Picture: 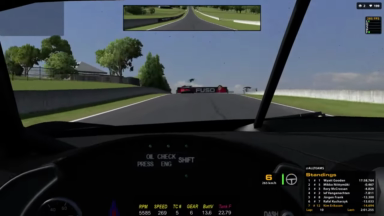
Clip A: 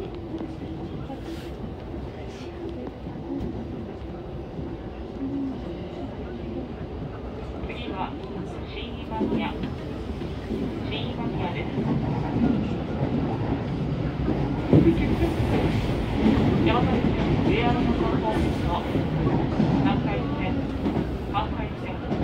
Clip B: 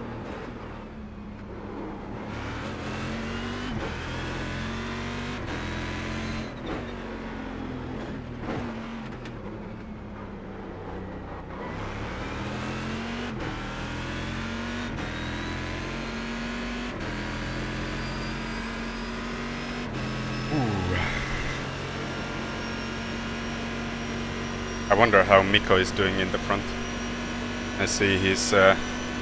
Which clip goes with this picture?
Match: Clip B